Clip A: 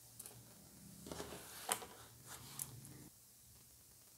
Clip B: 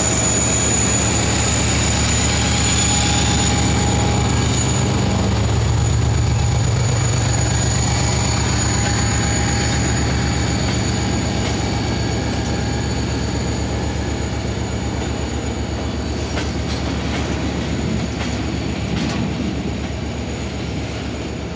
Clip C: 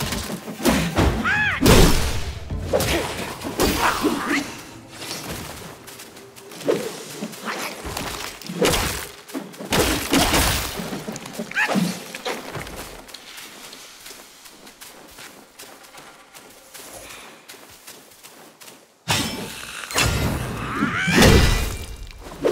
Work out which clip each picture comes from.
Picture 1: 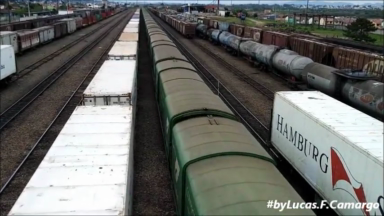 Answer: B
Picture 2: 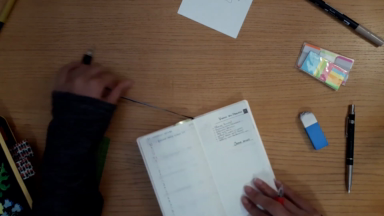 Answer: A